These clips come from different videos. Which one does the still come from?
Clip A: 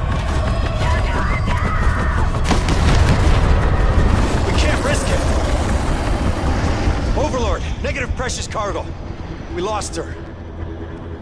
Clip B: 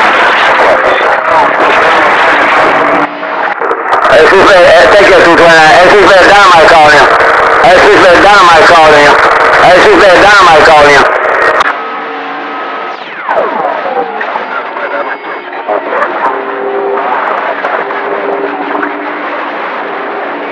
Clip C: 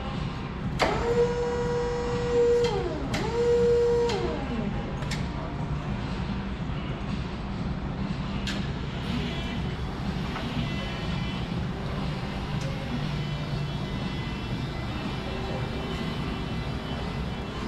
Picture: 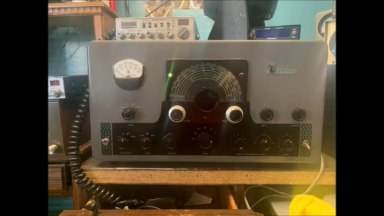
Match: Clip B